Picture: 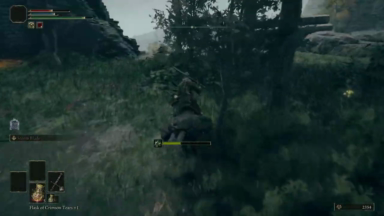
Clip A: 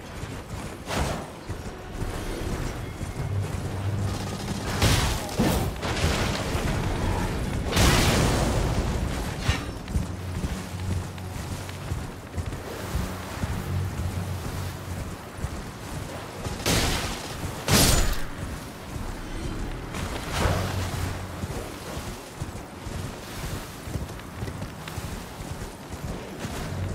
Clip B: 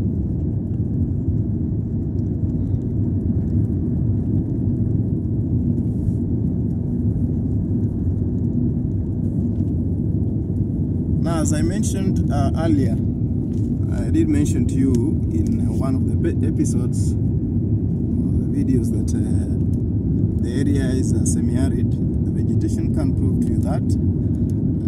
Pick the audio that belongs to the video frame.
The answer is A